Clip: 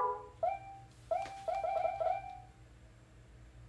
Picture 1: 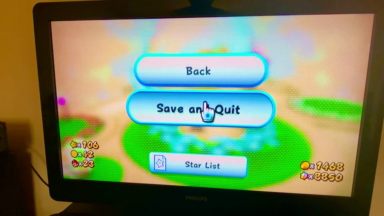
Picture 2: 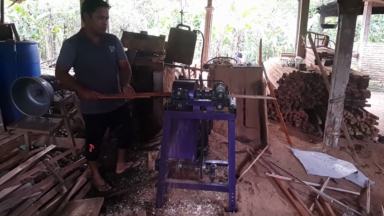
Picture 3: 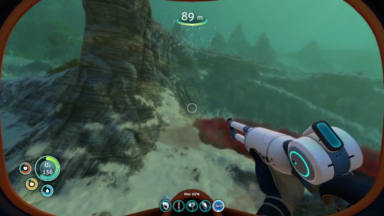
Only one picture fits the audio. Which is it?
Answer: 1